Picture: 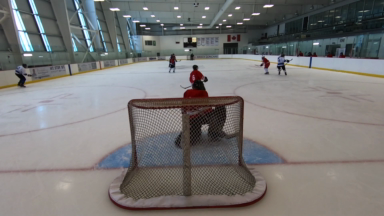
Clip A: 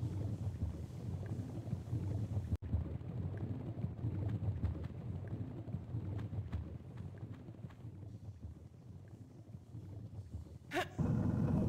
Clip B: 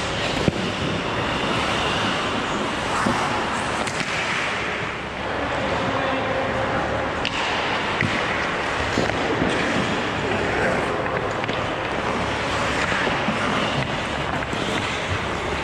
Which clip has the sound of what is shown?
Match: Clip B